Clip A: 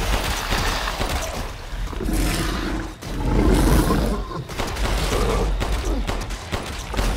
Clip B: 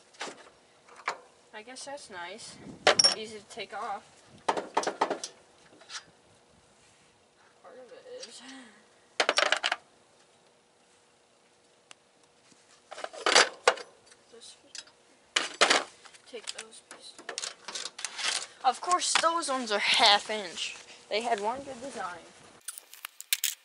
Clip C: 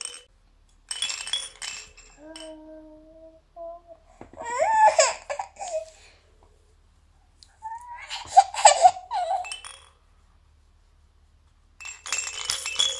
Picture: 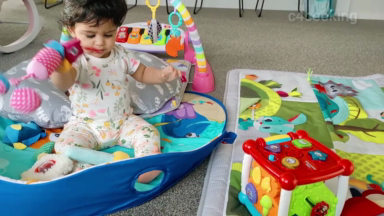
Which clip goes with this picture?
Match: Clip C